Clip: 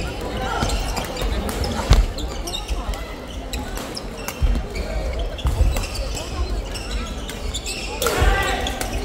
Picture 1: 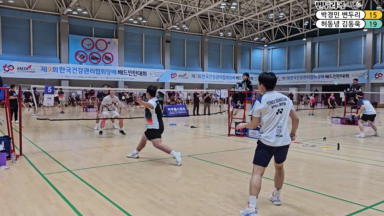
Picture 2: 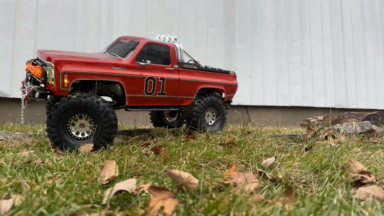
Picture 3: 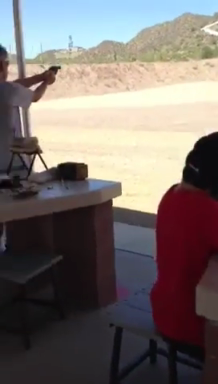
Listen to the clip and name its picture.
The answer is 1